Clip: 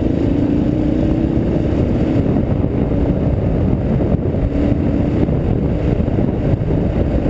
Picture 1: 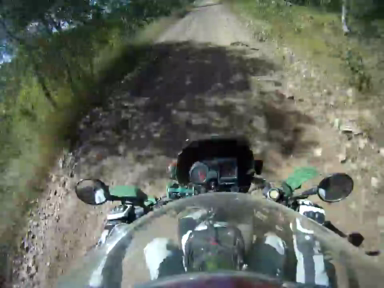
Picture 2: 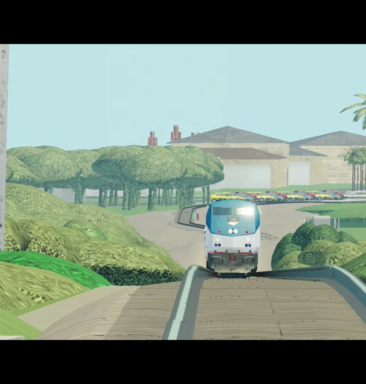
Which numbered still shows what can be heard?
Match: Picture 1